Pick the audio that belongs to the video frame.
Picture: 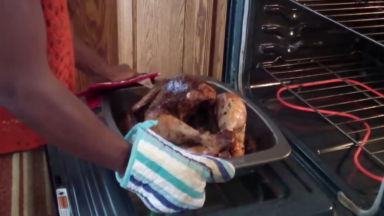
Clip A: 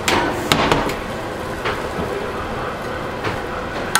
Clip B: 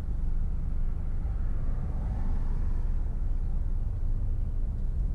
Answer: A